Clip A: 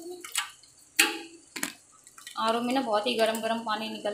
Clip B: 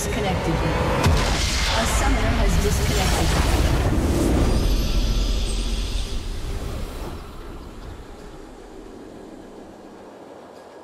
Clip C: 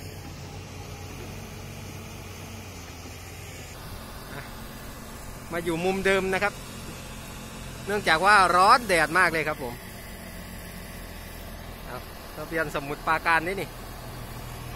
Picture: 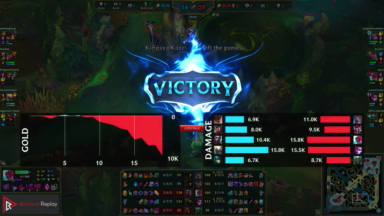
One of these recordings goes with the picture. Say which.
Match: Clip B